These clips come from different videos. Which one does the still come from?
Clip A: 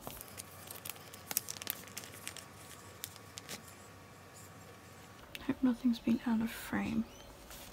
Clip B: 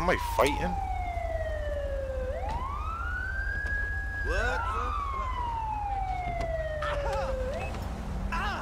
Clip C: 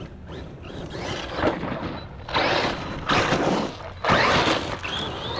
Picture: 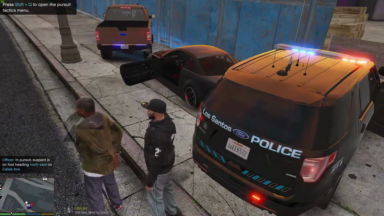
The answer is B